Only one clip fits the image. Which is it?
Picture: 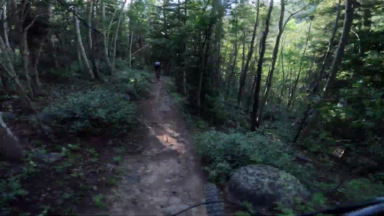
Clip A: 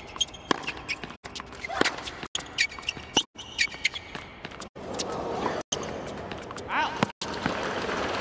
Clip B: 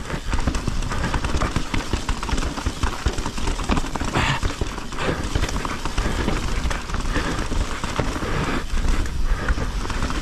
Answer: B